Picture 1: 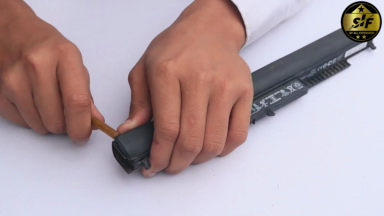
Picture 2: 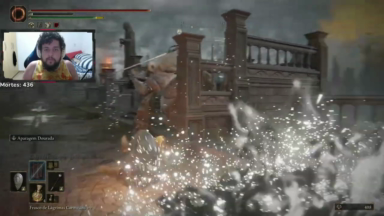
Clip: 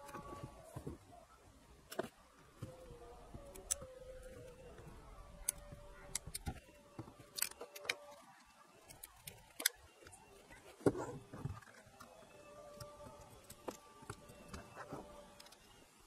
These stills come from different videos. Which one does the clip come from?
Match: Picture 1